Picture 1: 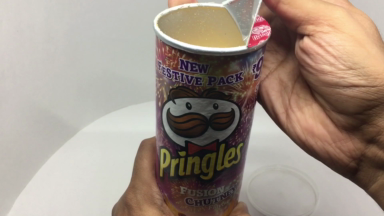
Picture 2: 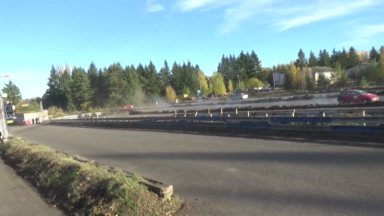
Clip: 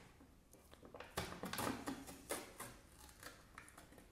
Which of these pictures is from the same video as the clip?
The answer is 1